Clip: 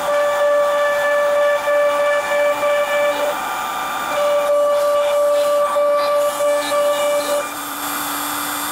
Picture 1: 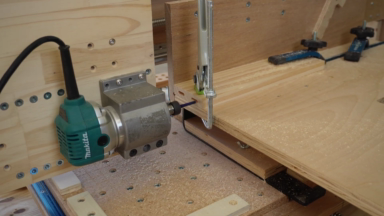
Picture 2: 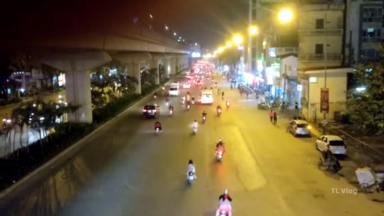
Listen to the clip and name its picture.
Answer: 1